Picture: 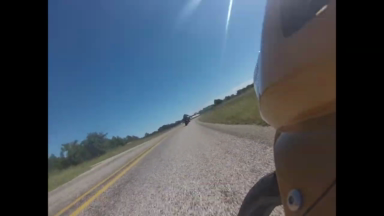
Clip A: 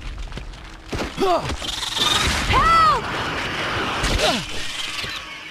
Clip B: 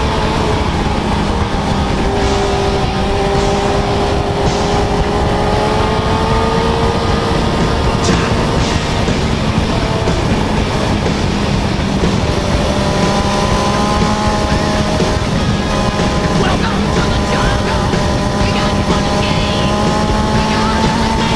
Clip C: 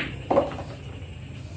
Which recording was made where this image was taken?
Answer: B